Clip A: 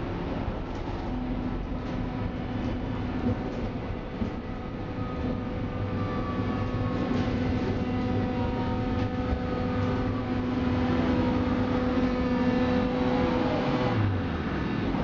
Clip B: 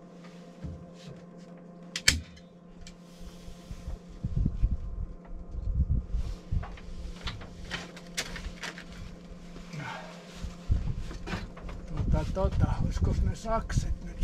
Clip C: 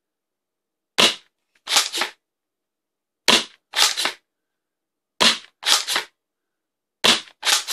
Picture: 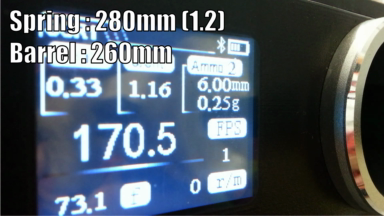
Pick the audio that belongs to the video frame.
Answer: C